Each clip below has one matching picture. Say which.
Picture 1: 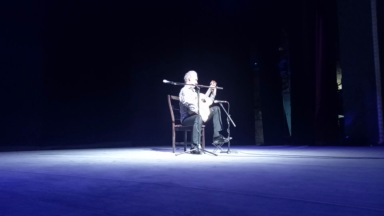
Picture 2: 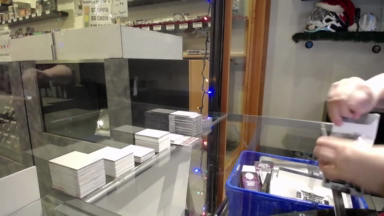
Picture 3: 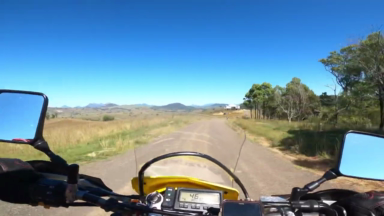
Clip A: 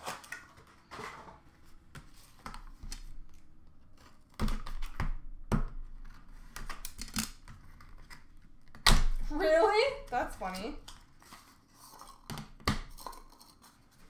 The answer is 2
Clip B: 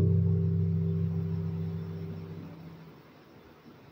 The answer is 1